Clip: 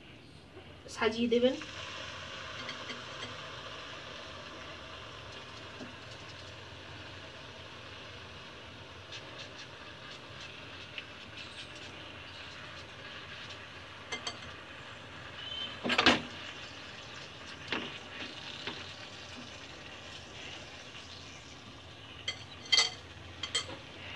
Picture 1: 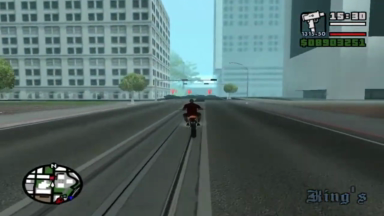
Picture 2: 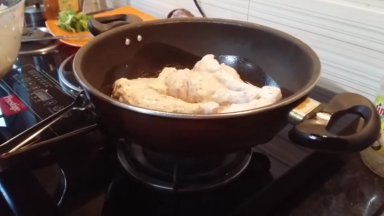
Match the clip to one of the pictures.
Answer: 2